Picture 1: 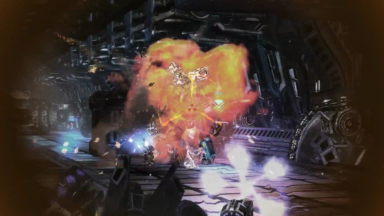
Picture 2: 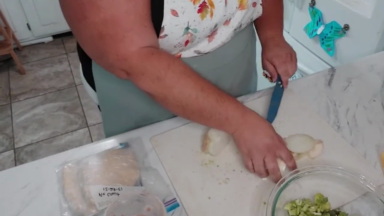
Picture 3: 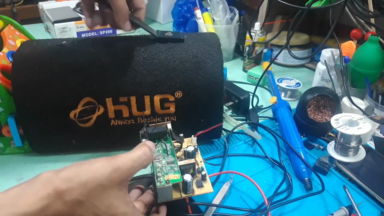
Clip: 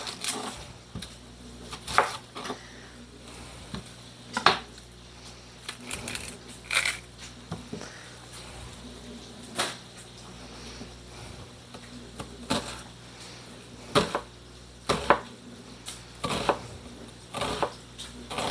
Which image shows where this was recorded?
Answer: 2